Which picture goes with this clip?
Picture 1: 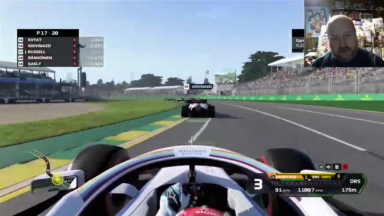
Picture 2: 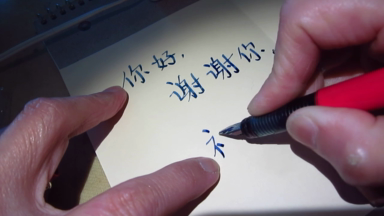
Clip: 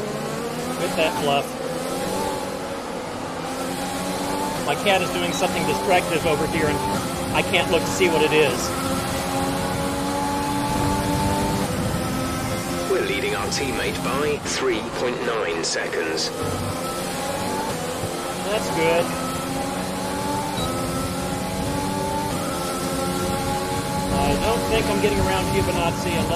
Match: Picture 1